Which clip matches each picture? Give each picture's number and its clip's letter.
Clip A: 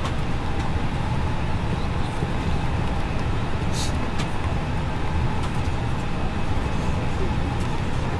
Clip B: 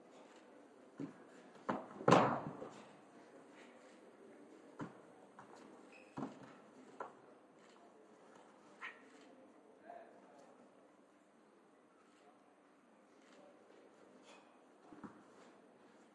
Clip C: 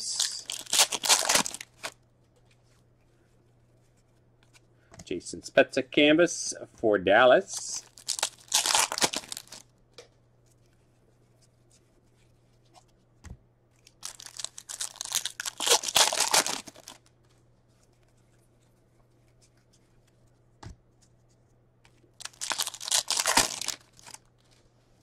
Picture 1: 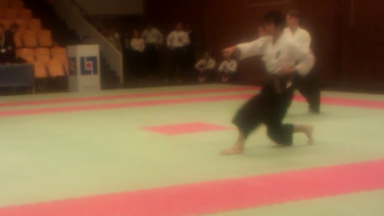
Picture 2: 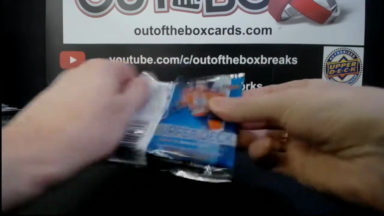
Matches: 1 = B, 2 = C